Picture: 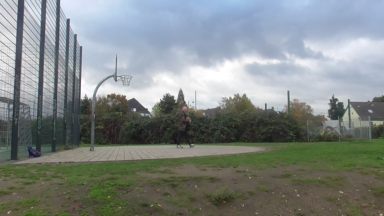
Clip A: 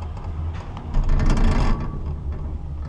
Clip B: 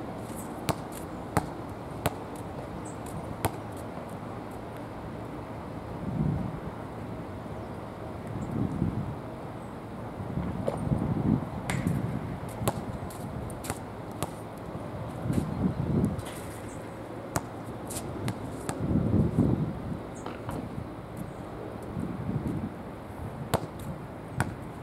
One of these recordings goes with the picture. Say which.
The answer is B